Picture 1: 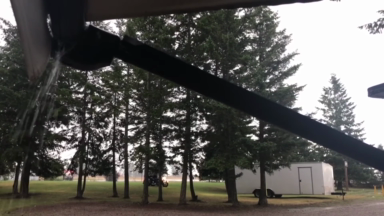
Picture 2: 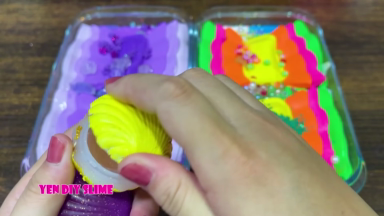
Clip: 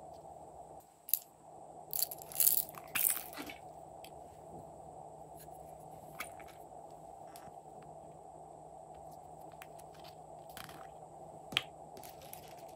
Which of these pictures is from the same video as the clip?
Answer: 2